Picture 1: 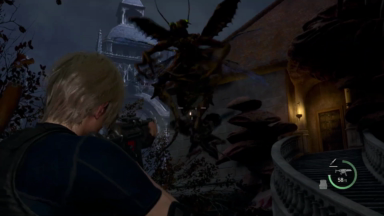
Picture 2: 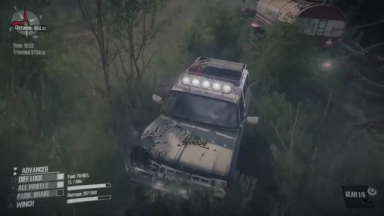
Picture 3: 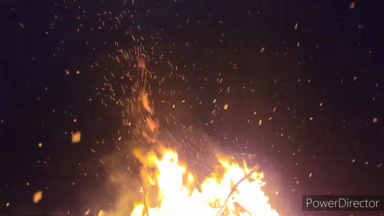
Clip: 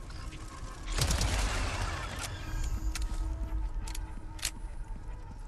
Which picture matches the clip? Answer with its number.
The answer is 1